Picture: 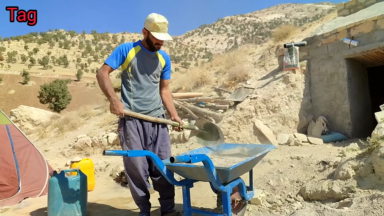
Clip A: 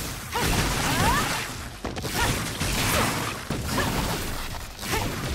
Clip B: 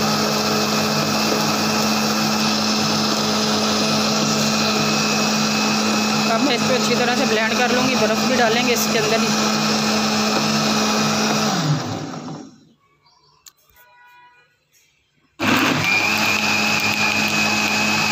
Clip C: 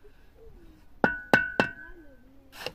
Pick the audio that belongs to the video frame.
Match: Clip C